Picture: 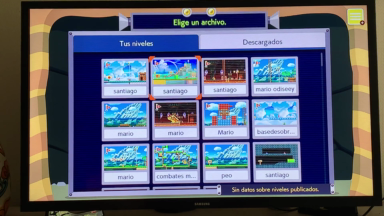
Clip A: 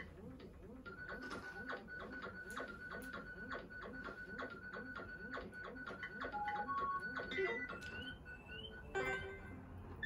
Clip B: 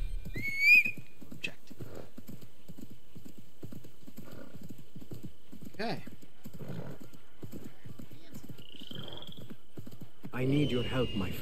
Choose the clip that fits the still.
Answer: A